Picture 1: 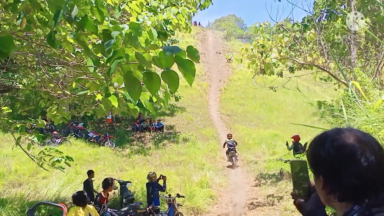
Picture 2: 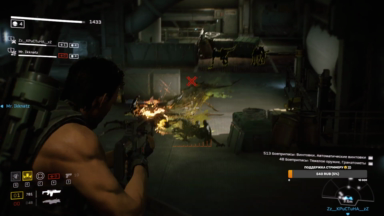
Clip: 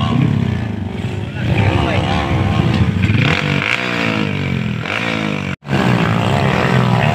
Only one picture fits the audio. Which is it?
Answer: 1